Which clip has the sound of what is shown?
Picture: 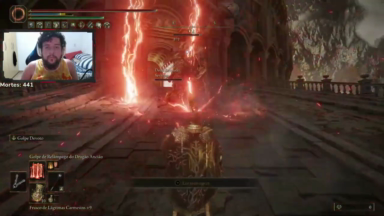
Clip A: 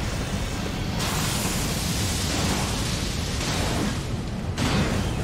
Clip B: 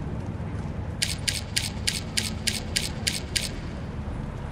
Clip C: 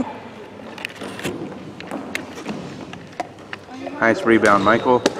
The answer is A